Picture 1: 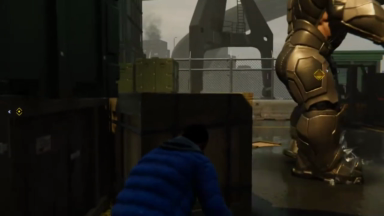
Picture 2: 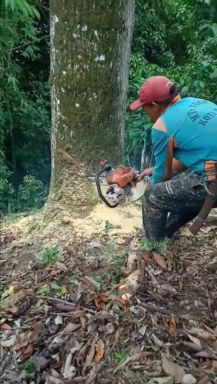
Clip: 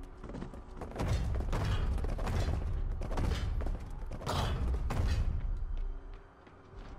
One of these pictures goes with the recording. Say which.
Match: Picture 1